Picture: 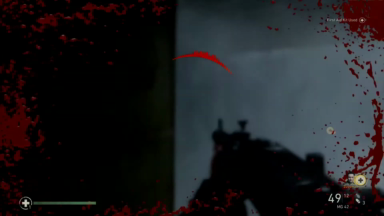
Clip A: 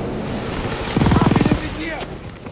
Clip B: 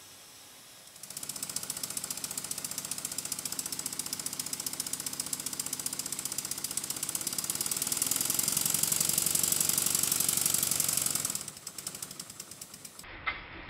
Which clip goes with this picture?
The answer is A